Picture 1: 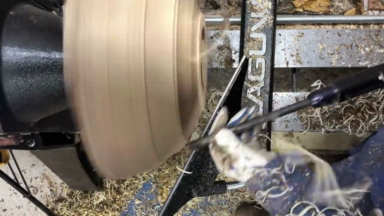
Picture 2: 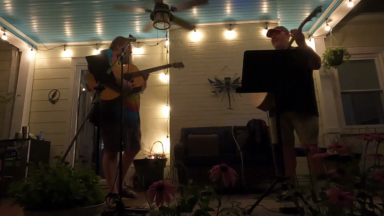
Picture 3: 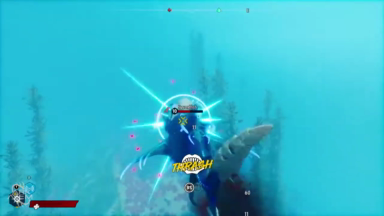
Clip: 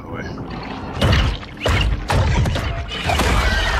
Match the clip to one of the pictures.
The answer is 3